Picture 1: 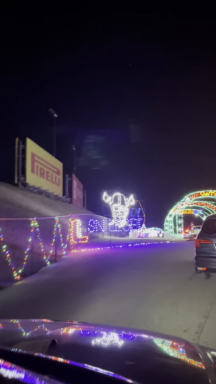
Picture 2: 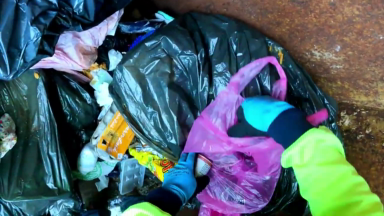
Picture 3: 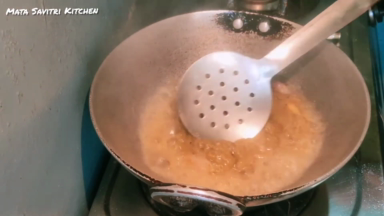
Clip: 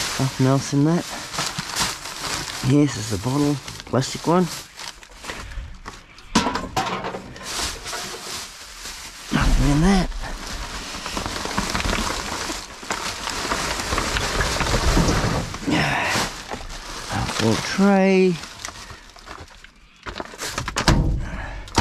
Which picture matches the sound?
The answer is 2